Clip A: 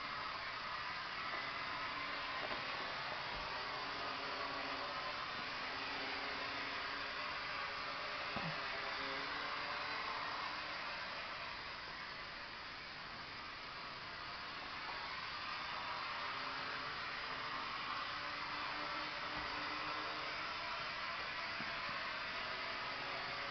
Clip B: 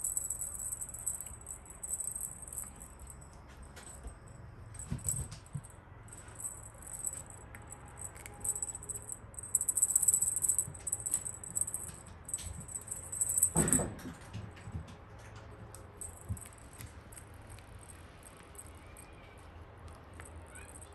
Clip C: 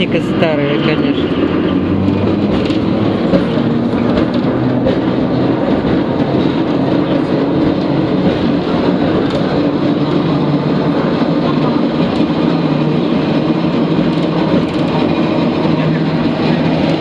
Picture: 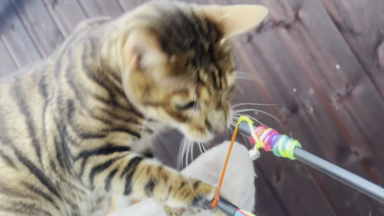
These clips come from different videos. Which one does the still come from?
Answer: B